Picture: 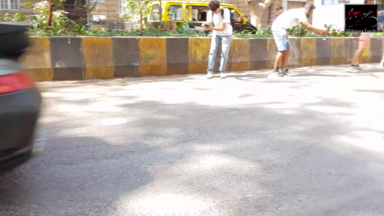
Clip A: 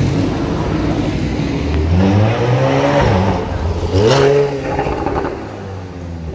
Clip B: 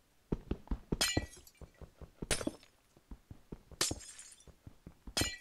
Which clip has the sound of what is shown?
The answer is A